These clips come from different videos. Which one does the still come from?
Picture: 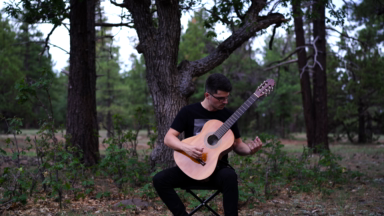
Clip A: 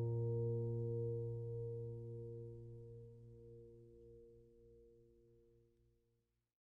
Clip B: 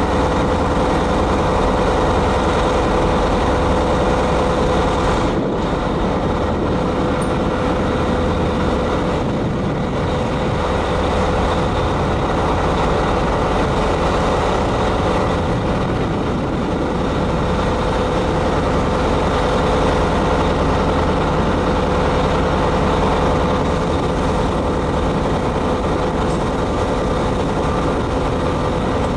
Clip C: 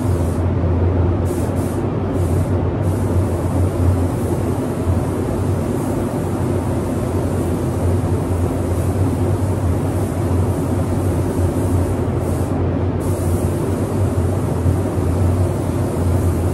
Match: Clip A